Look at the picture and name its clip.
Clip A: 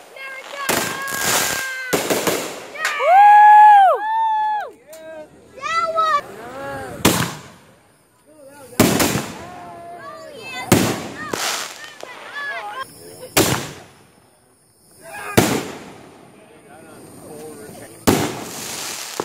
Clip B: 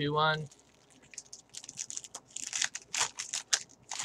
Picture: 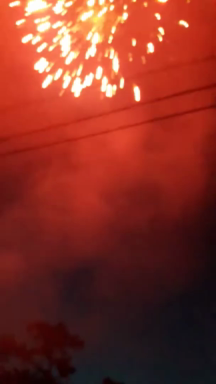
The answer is A